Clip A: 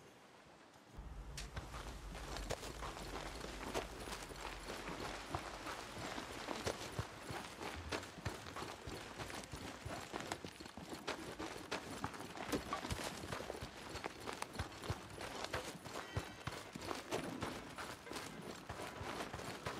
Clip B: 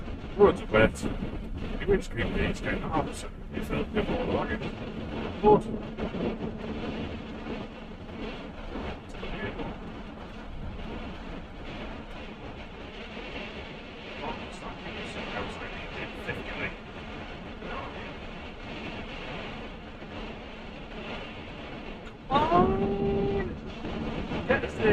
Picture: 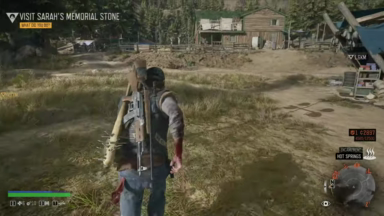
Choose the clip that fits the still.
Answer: A